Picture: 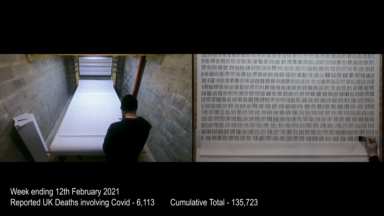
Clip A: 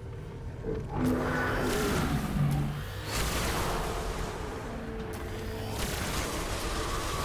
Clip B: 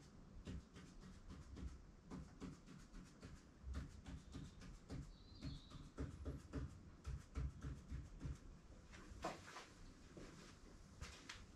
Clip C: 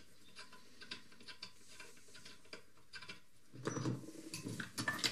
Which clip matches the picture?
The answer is B